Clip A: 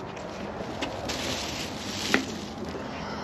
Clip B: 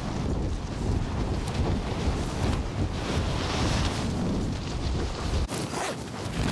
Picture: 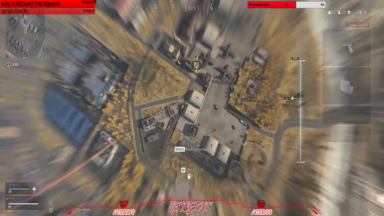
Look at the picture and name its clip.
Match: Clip B